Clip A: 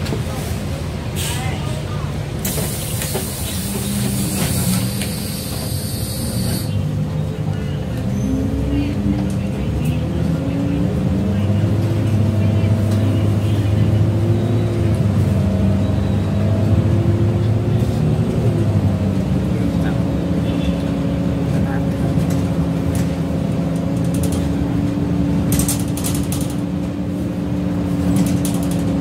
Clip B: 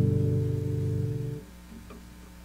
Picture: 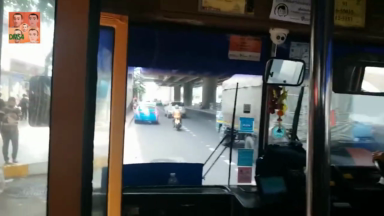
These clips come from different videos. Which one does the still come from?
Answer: A